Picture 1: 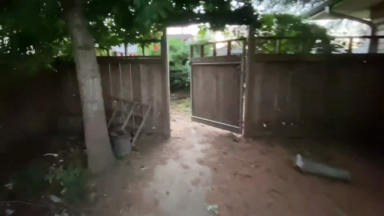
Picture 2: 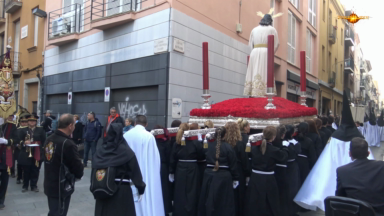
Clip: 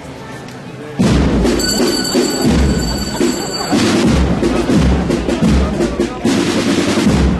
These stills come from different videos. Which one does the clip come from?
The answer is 2